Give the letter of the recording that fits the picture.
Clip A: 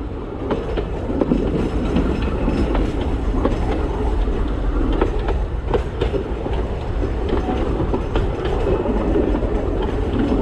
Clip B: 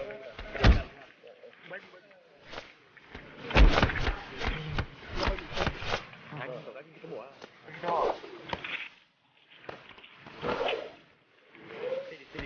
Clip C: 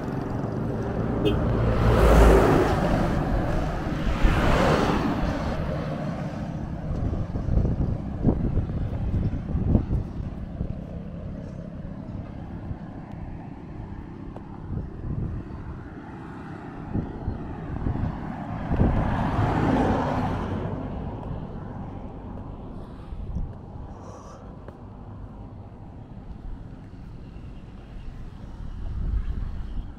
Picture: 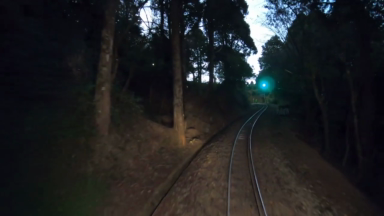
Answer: A